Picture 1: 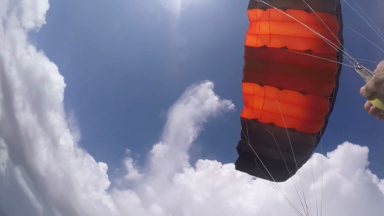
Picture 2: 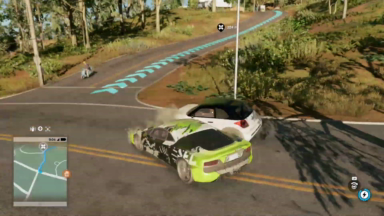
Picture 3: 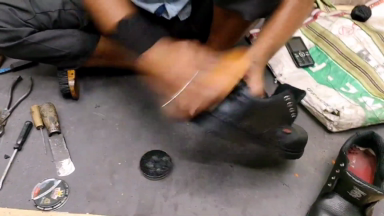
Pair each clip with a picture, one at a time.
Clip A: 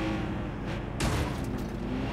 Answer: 2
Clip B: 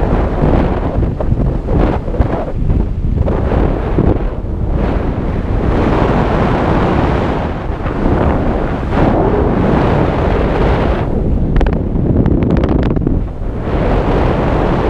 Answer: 1